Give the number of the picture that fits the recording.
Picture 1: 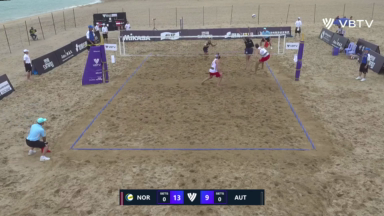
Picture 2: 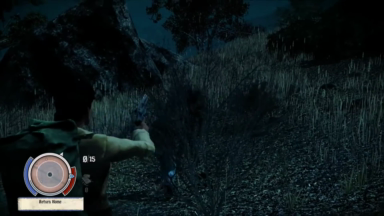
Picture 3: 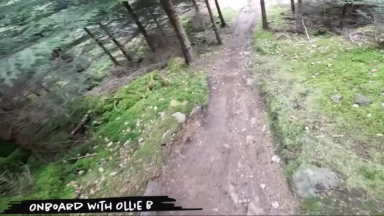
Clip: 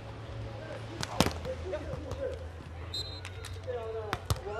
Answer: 1